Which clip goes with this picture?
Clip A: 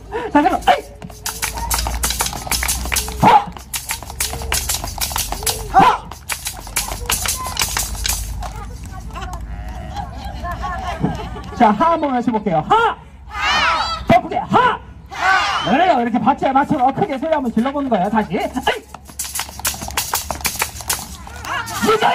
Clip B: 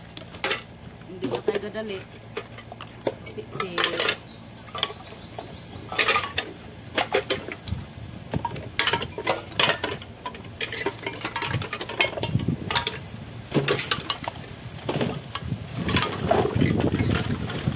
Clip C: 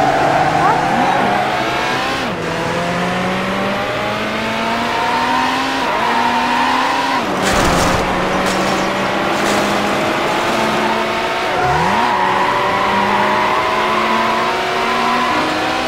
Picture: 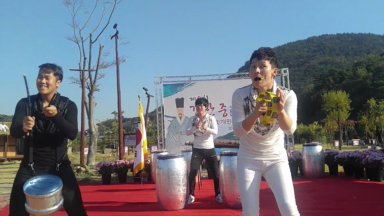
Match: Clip A